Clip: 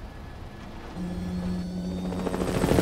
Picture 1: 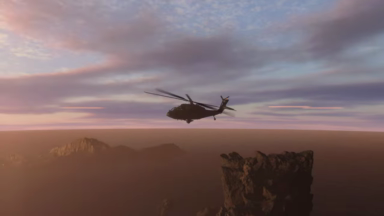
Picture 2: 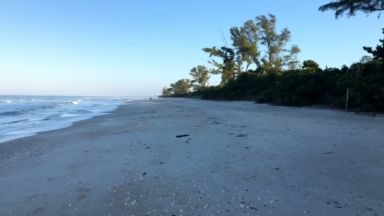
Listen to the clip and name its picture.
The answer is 1